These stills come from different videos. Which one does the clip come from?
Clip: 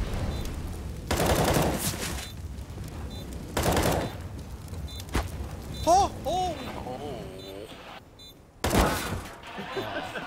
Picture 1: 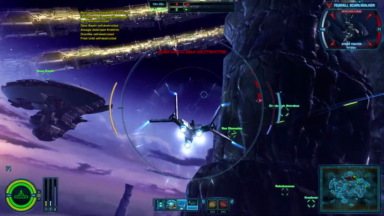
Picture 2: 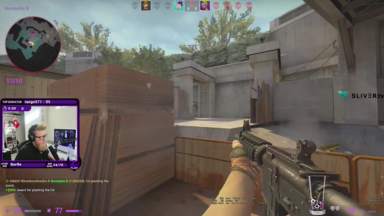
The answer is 2